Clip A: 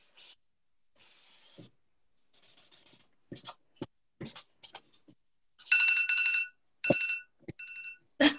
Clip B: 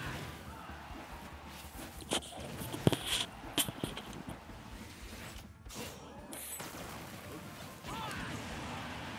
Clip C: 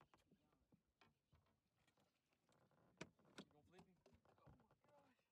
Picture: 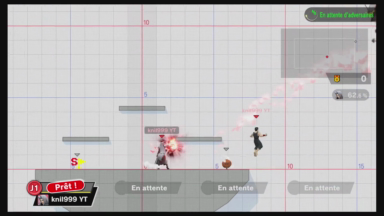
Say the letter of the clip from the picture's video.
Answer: B